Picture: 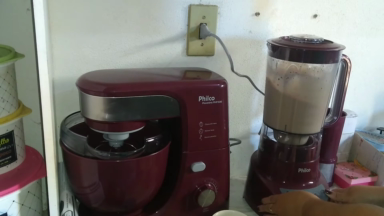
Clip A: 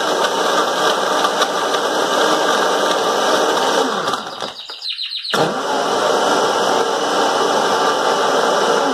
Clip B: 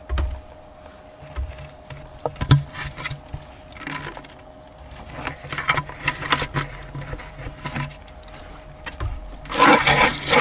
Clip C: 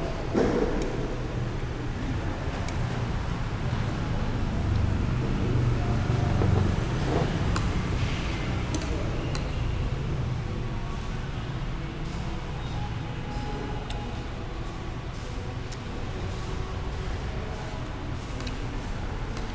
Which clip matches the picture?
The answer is A